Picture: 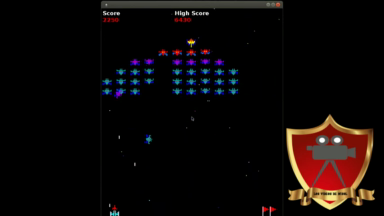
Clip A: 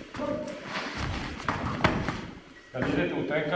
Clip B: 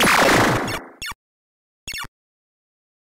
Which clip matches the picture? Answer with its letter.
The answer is B